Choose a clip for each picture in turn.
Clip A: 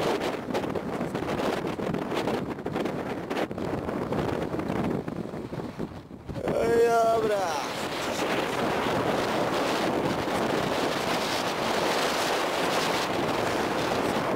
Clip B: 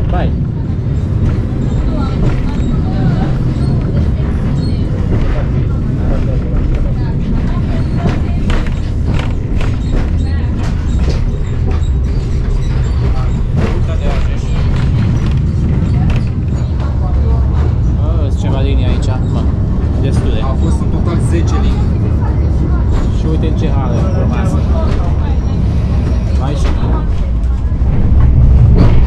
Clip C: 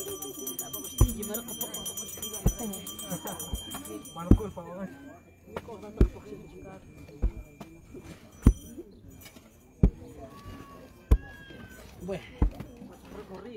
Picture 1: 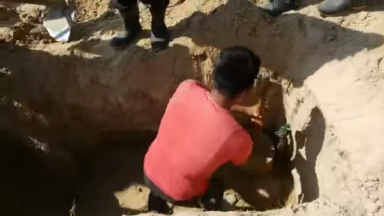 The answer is C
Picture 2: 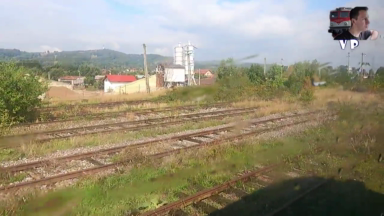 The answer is B